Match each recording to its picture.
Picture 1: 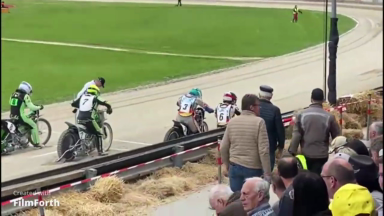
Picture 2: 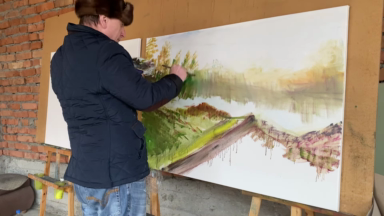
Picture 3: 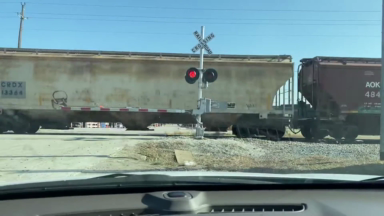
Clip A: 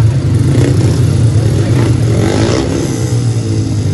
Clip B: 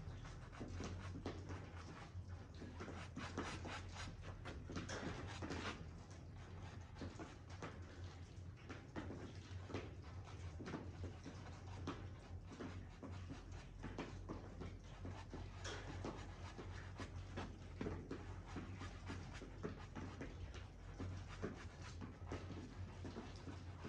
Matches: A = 1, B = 2